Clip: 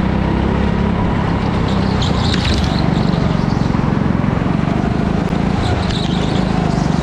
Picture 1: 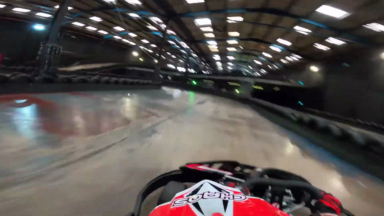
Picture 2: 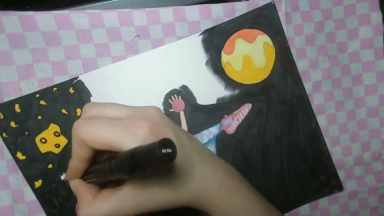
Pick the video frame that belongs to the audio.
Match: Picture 1